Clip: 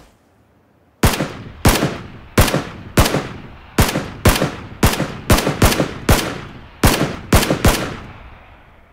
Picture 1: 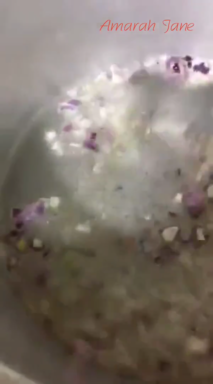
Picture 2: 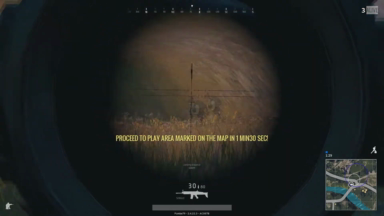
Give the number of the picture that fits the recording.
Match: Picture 2